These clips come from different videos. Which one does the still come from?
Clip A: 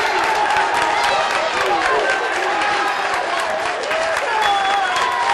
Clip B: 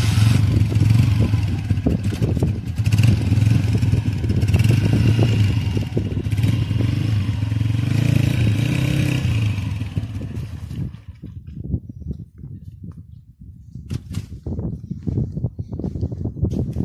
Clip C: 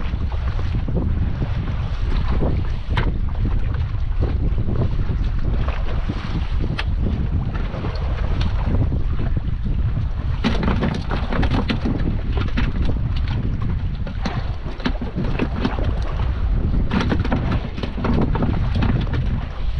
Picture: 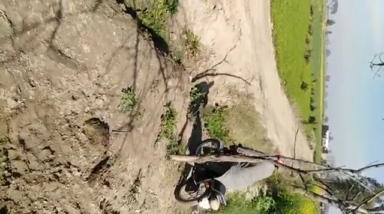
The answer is B